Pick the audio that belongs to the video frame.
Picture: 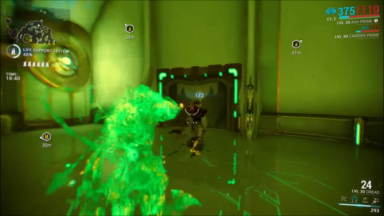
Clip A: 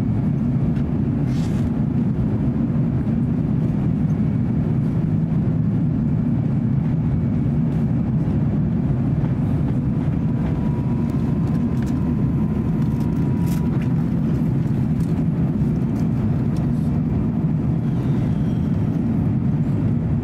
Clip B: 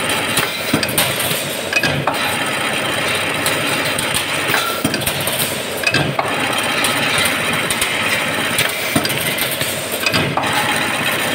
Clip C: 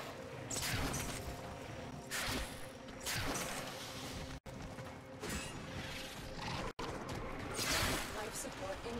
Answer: C